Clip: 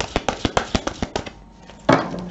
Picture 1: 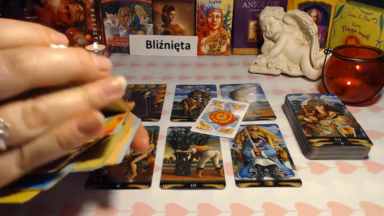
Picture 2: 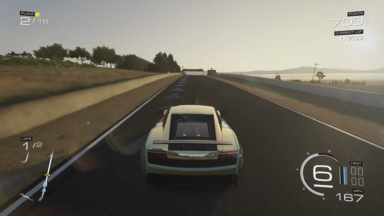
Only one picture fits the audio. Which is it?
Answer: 1